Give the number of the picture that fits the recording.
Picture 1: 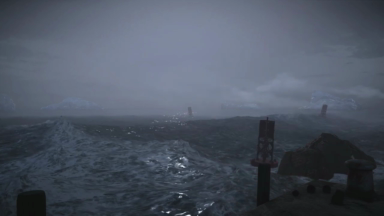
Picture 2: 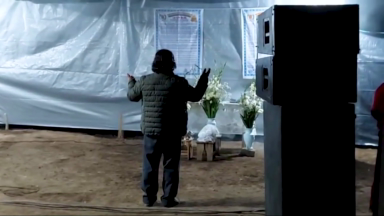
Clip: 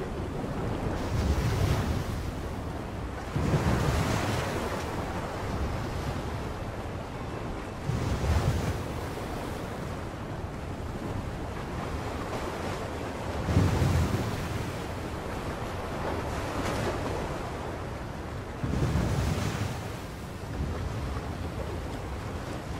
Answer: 1